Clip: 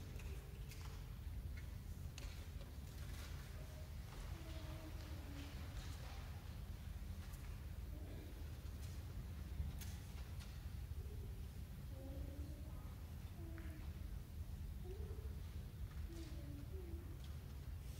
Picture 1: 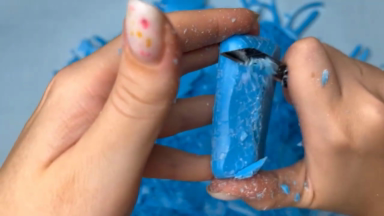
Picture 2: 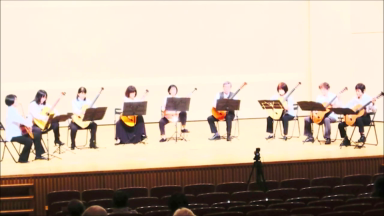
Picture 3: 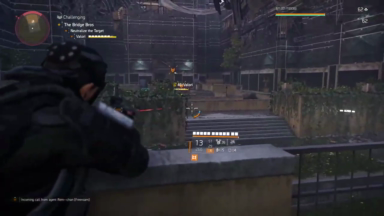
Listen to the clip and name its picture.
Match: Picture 2